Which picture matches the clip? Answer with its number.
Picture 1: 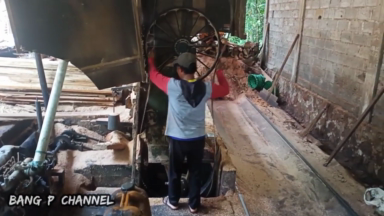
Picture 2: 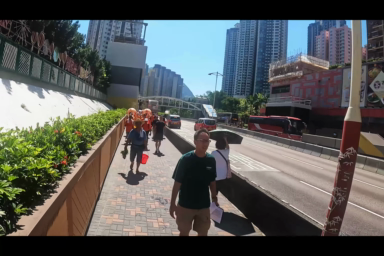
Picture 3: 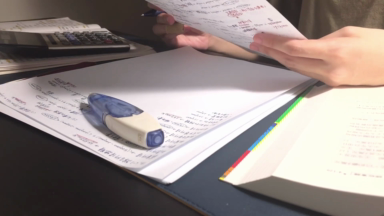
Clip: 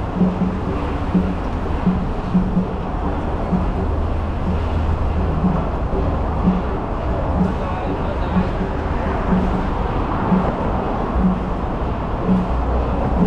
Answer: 2